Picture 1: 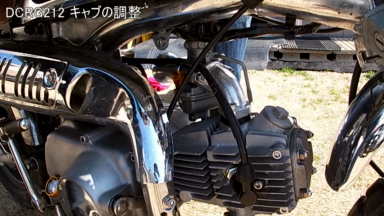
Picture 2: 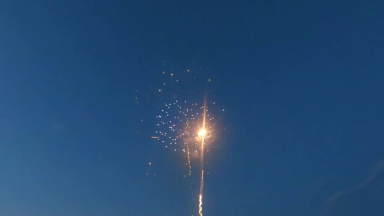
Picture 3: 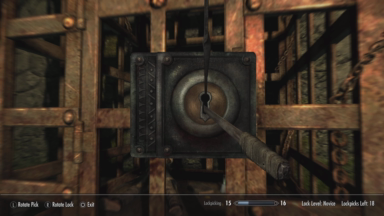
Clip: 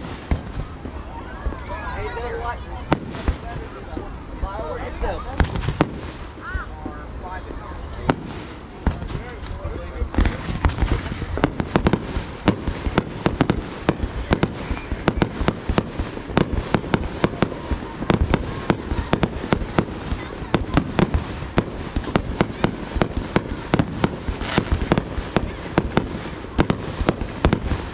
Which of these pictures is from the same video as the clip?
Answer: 2